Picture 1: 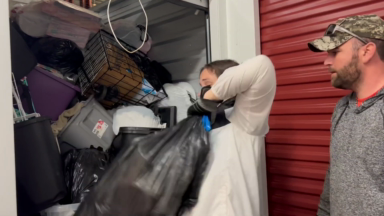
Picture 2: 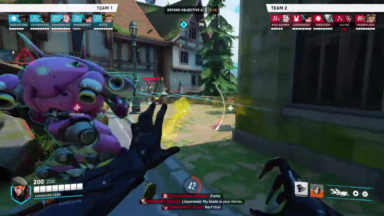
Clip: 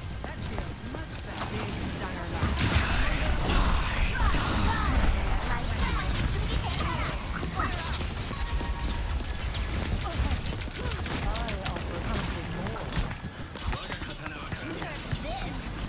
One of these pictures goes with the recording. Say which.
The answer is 2